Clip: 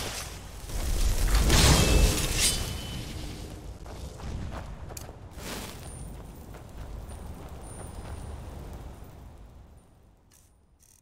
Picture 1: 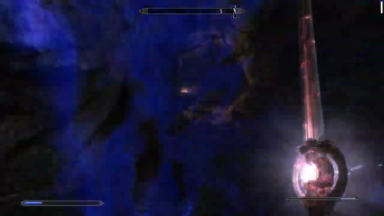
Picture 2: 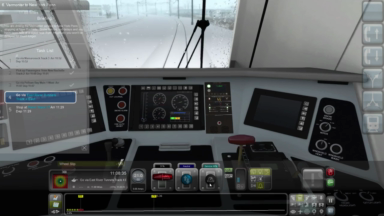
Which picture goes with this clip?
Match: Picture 1